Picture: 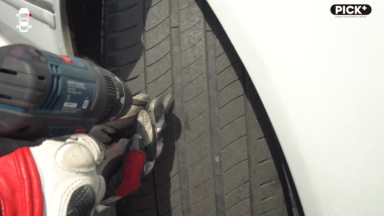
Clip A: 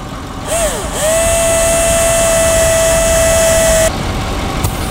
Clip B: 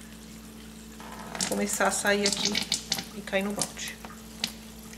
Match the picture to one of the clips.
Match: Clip A